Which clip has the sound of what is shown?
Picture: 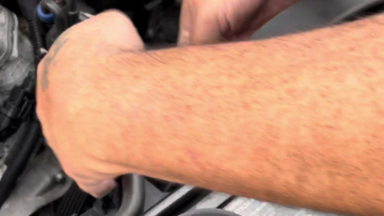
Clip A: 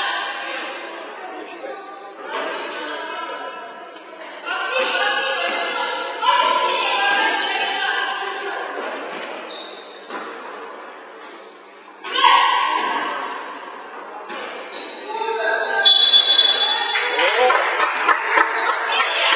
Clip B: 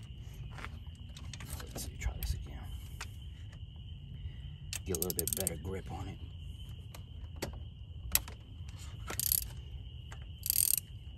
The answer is B